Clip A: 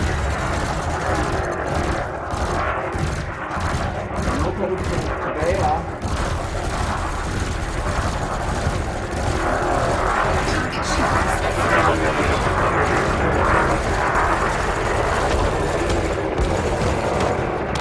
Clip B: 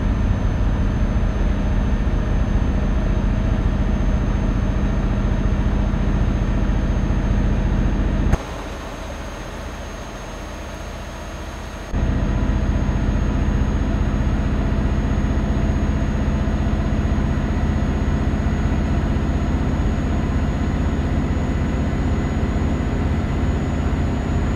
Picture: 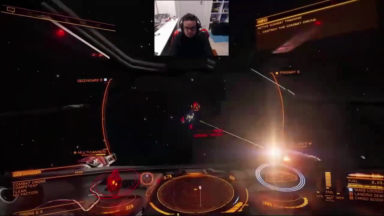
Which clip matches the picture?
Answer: A